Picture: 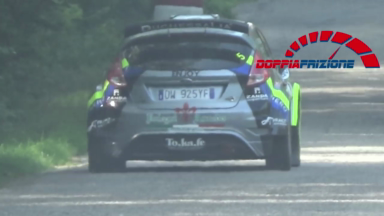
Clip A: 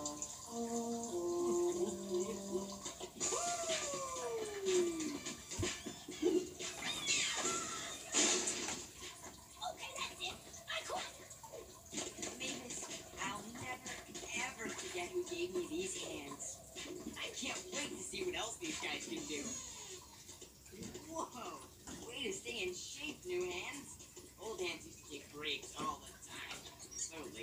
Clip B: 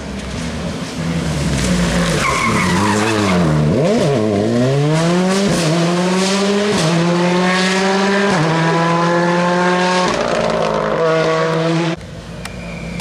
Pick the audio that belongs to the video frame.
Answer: B